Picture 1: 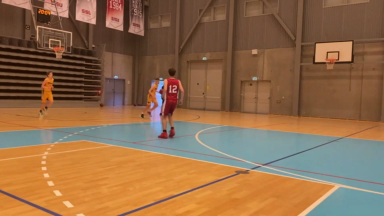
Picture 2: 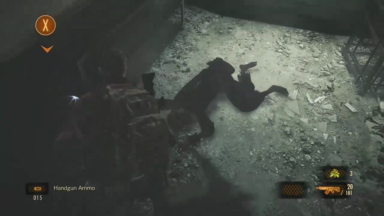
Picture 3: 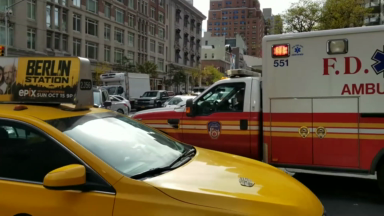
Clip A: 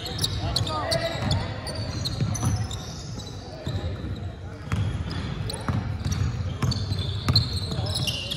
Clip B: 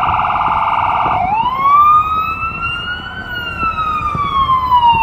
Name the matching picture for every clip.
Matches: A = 1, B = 3